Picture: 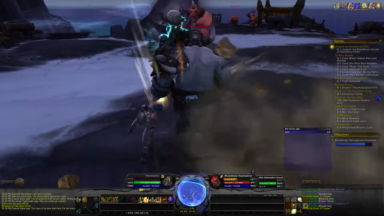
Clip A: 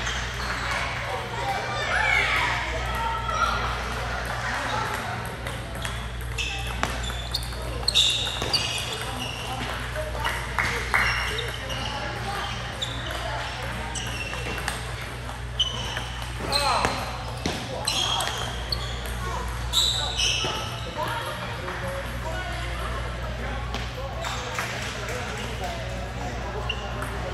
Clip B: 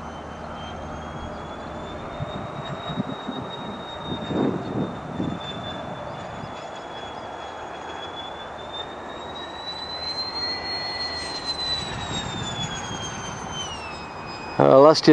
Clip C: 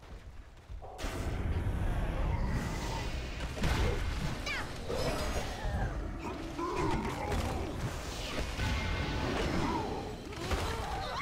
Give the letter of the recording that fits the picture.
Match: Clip C